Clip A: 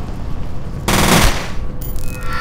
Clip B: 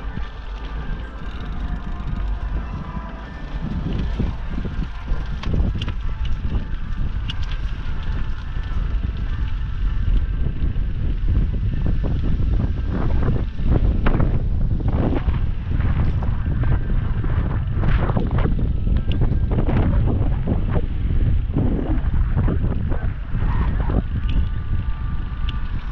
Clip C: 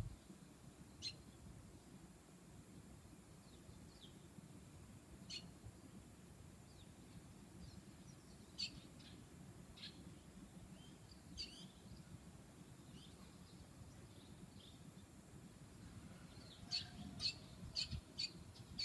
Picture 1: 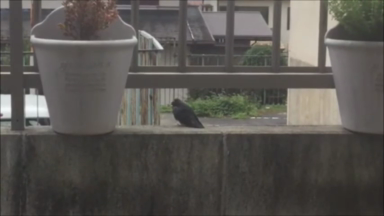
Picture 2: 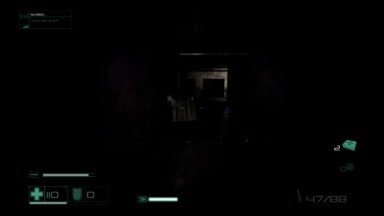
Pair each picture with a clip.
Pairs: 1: C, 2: A